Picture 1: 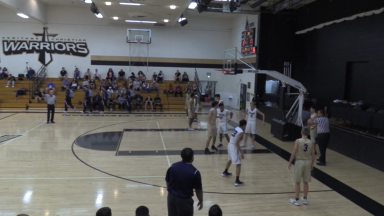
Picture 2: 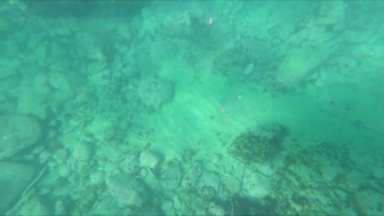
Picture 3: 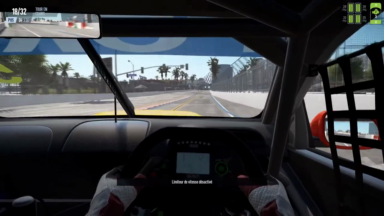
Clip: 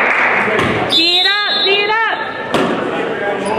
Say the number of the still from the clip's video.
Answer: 1